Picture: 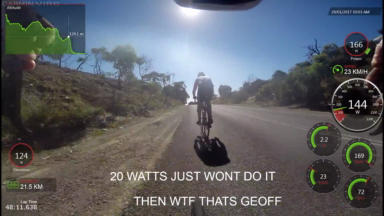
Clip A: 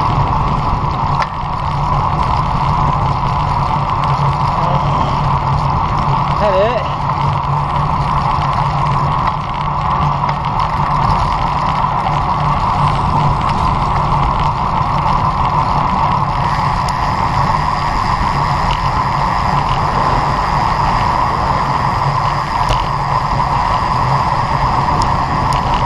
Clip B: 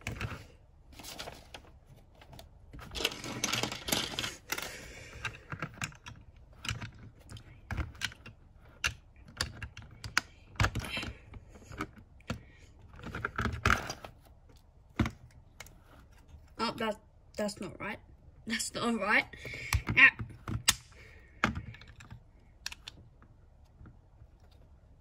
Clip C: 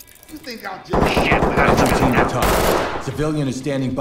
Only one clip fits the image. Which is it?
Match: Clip A